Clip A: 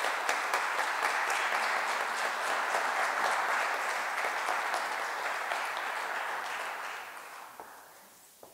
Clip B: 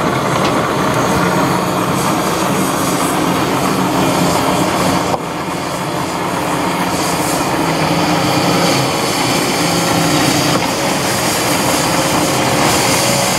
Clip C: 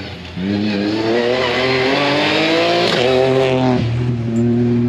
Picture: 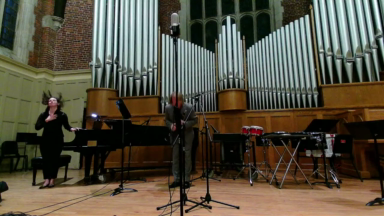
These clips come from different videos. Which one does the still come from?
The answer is A